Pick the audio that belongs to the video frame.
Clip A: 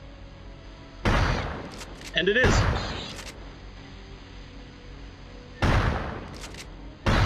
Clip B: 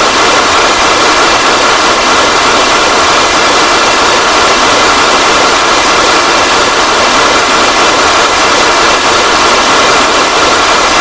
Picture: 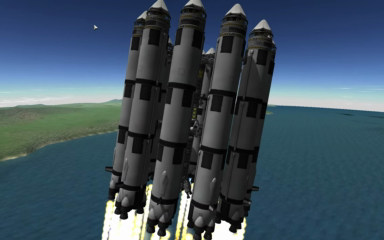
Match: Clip B